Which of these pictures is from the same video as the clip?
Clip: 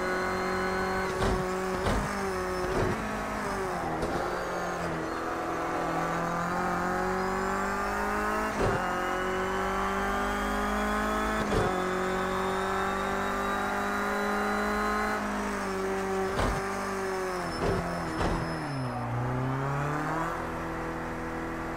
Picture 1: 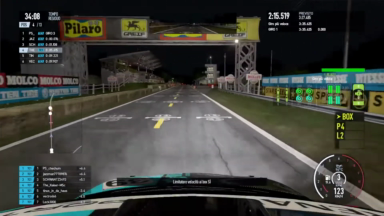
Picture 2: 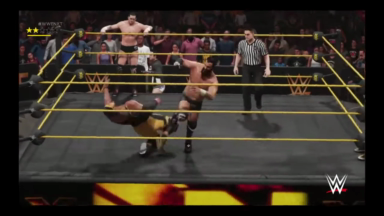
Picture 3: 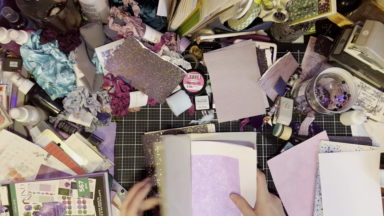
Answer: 1